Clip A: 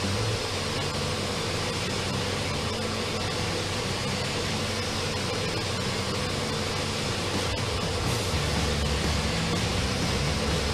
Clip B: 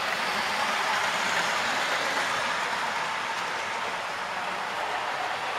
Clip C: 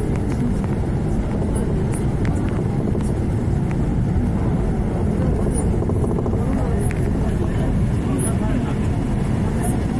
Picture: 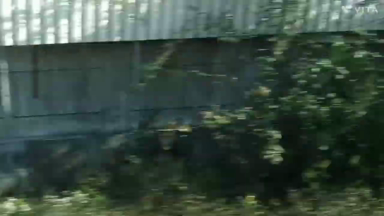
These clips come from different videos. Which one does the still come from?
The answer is C